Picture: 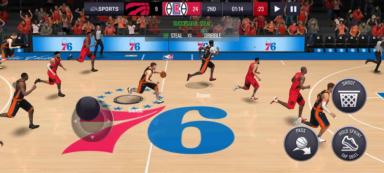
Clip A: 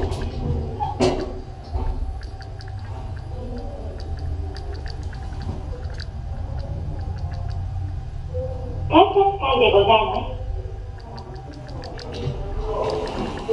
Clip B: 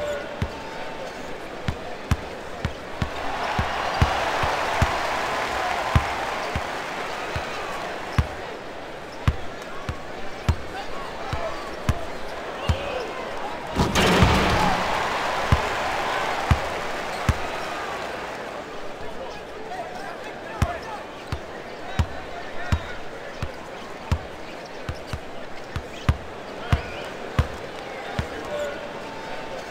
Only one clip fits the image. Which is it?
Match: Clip B